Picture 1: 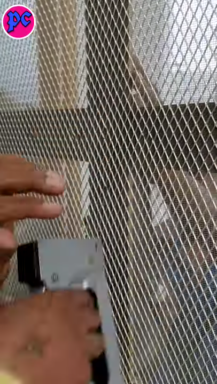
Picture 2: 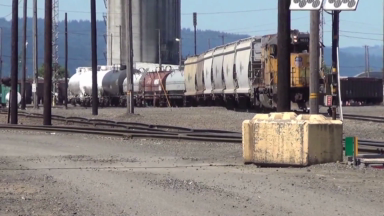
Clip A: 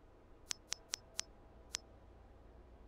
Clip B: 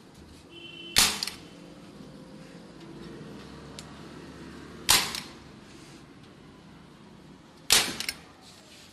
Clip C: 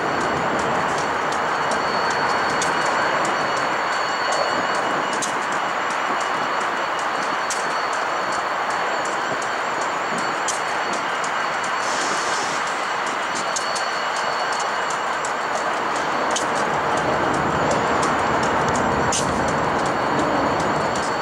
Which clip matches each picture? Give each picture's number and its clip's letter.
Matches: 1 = B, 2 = C